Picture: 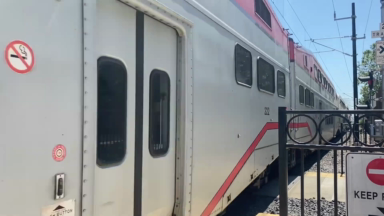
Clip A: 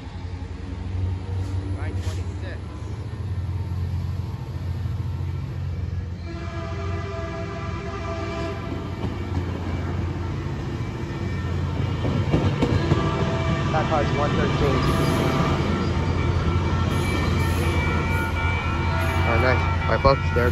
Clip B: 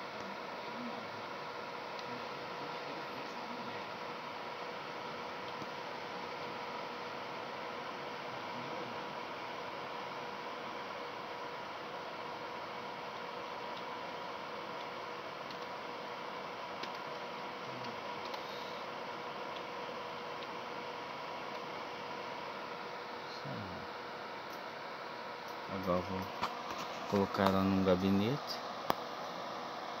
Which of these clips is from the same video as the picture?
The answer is A